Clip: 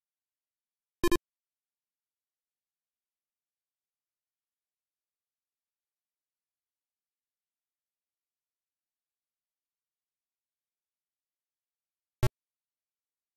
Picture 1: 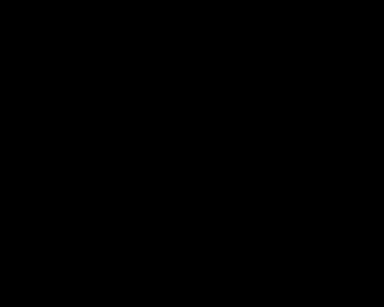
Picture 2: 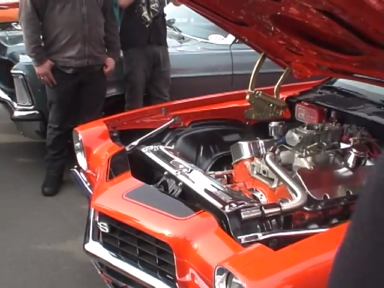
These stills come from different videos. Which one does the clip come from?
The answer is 1